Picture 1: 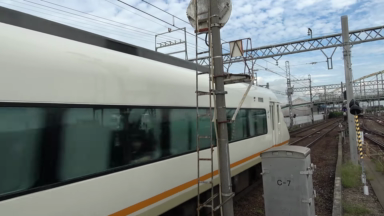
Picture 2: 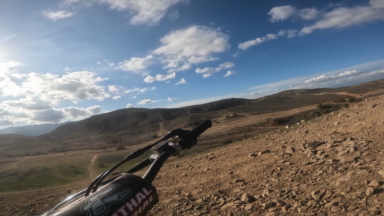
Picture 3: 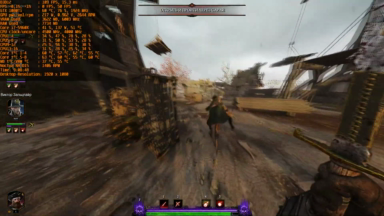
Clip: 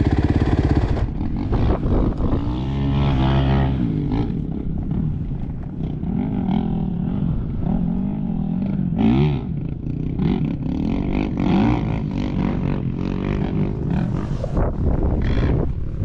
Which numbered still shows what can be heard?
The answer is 2